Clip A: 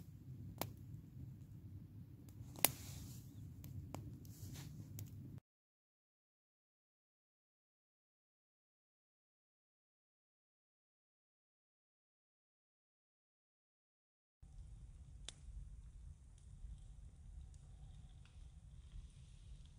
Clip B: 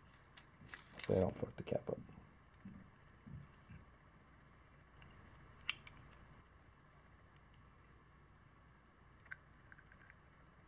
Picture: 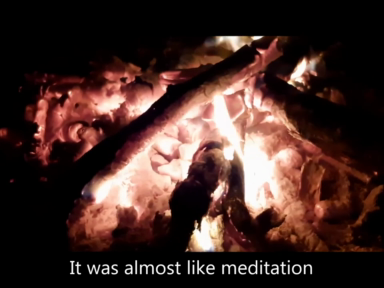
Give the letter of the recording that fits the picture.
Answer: A